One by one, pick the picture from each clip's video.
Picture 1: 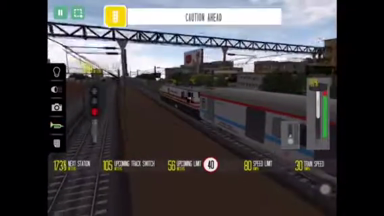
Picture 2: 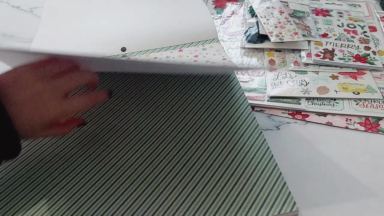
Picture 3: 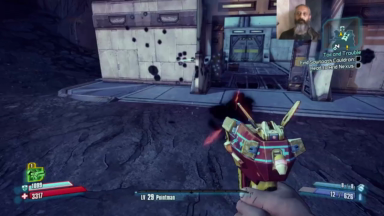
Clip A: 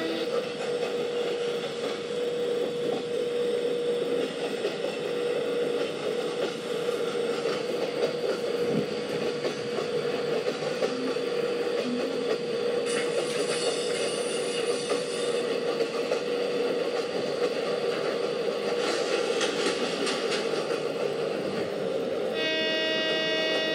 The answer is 1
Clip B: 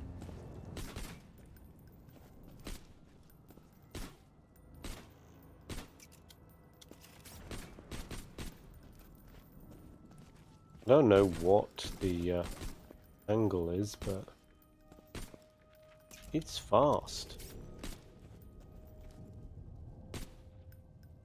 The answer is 3